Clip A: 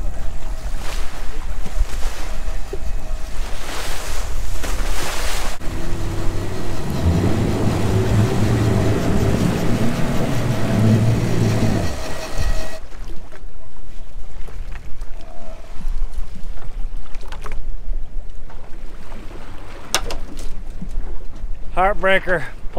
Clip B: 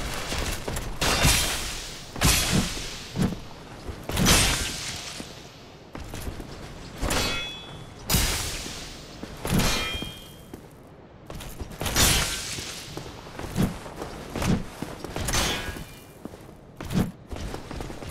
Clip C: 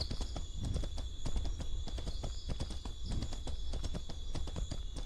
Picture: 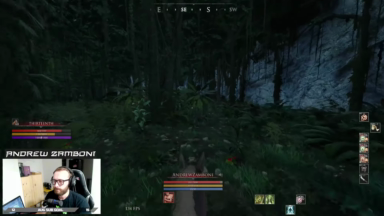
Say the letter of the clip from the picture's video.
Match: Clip C